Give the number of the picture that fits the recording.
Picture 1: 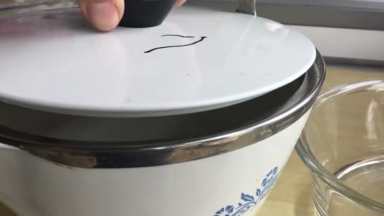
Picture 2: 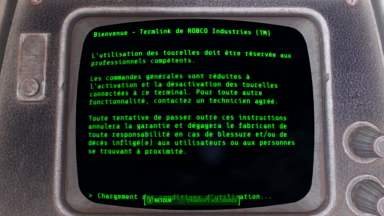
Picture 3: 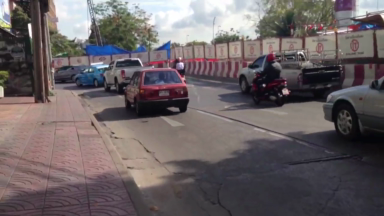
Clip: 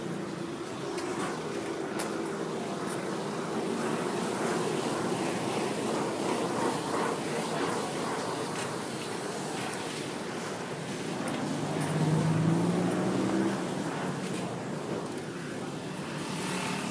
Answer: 3